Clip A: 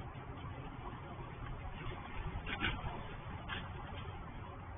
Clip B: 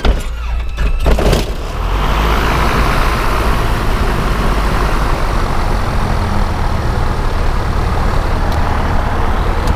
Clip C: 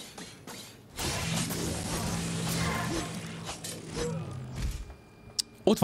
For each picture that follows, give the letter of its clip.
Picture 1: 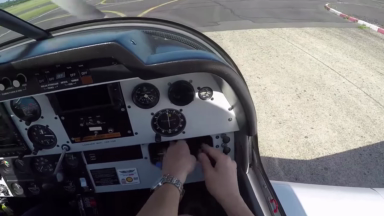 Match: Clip B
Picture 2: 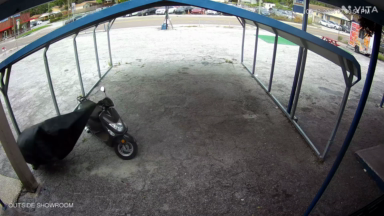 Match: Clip A